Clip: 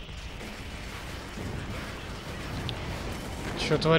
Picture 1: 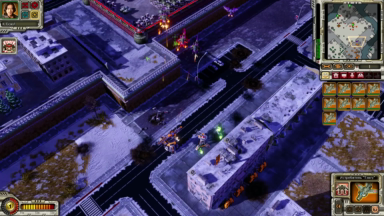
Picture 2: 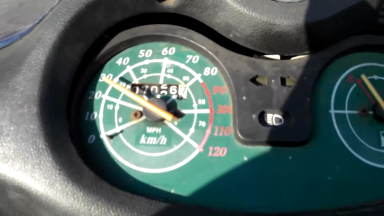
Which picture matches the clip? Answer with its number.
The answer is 1